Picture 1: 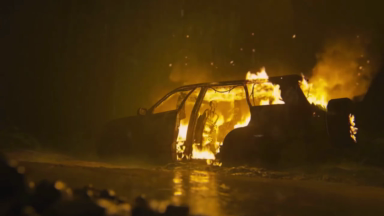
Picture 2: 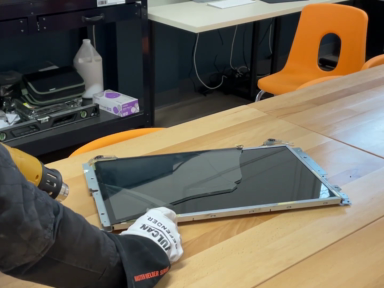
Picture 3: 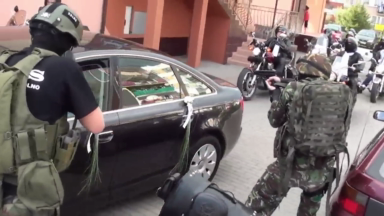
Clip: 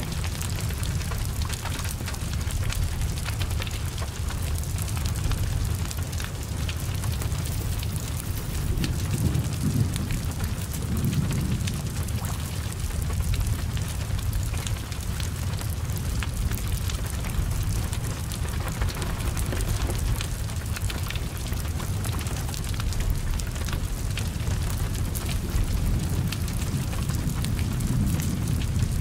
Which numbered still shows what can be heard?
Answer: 1